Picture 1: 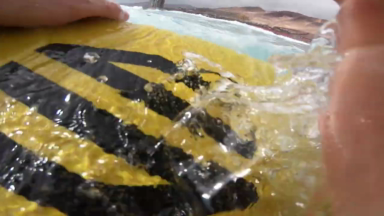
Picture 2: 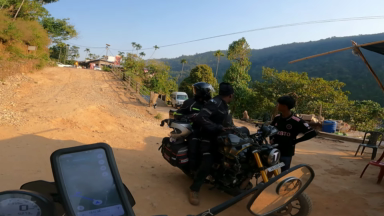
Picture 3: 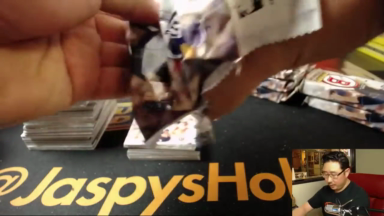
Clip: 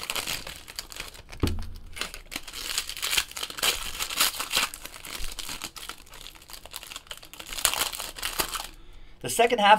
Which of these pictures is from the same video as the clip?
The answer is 3